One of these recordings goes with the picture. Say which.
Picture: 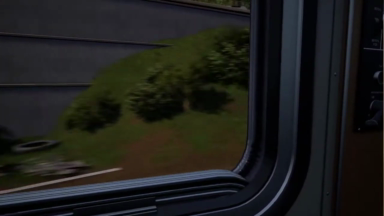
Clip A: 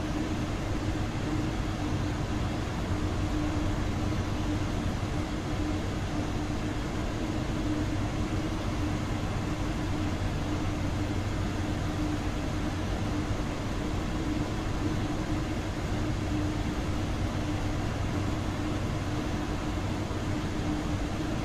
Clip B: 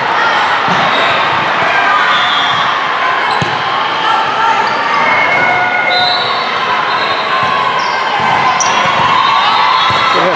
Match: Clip A